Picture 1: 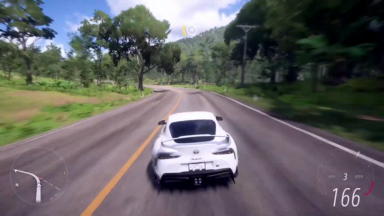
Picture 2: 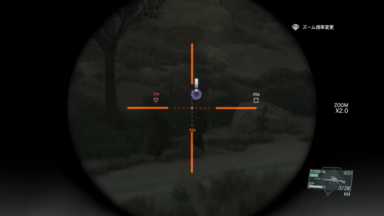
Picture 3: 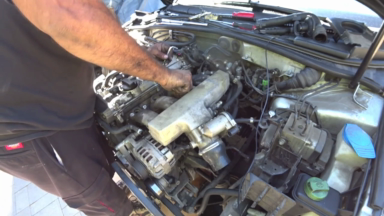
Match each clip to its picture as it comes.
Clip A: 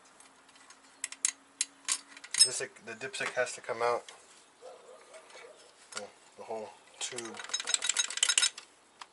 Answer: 3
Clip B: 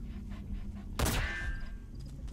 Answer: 2